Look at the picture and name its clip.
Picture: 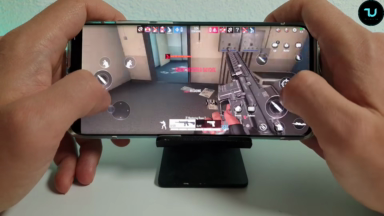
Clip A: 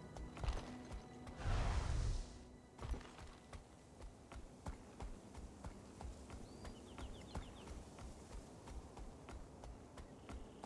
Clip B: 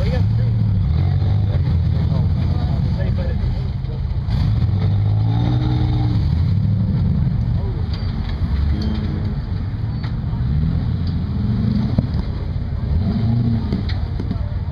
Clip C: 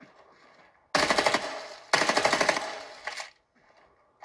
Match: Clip C